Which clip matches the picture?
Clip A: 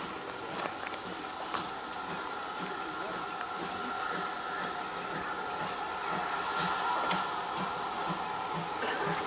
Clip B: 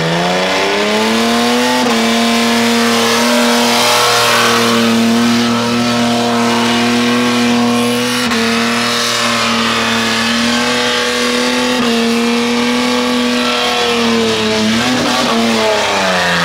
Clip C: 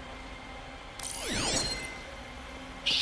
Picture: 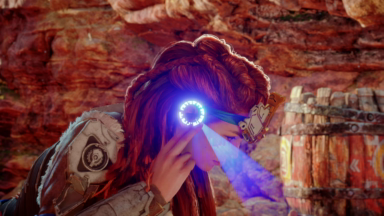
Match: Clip C